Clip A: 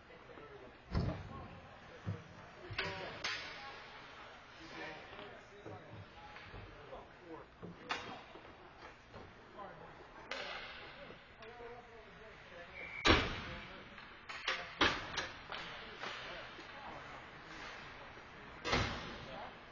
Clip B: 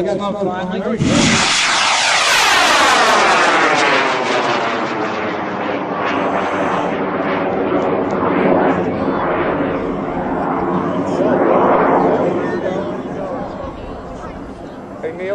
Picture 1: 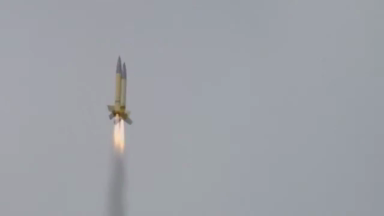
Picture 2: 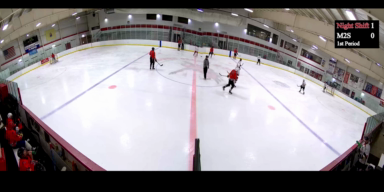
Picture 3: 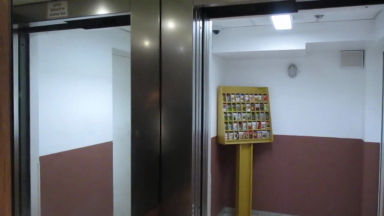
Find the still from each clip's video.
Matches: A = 2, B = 1